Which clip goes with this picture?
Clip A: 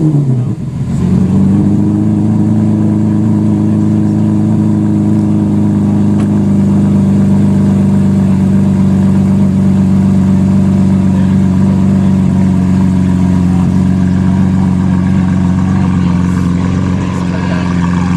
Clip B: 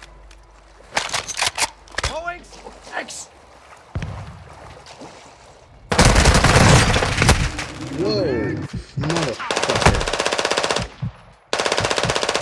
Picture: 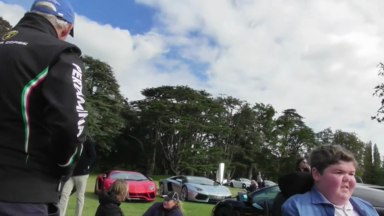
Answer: A